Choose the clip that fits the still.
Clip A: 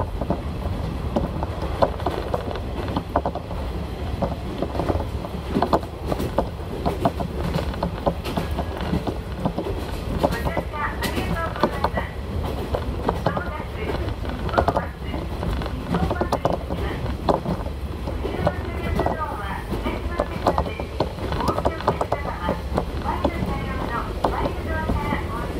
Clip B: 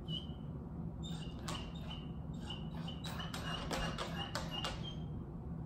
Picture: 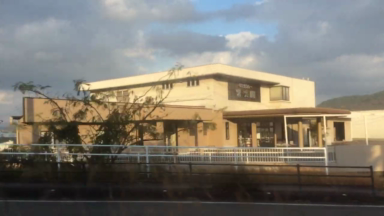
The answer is A